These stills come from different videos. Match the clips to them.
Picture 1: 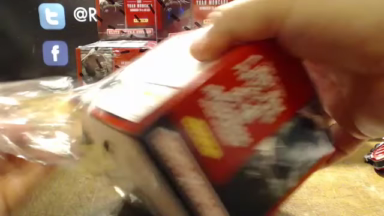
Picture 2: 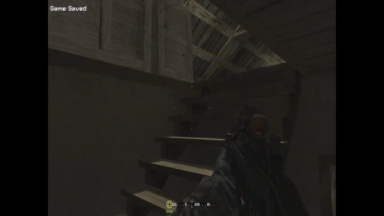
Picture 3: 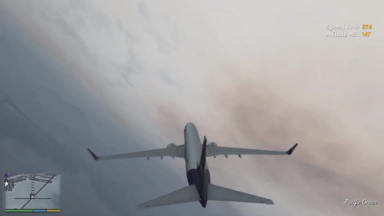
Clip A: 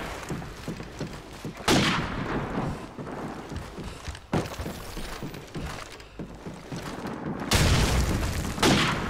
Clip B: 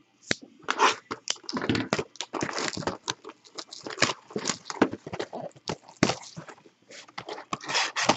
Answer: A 2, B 1